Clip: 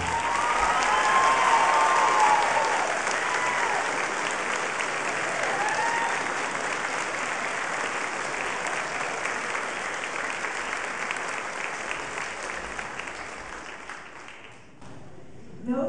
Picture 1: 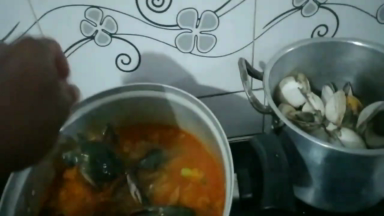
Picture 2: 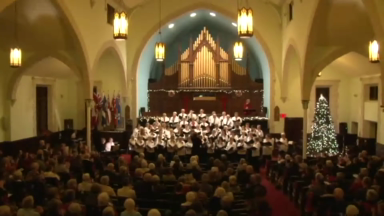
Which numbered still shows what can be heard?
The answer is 2